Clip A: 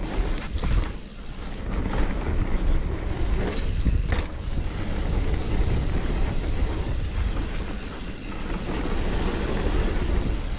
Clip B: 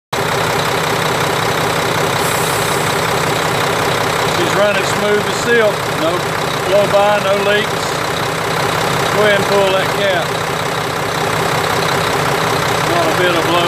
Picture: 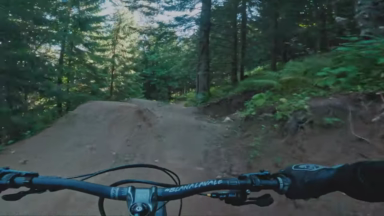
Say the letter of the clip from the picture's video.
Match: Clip A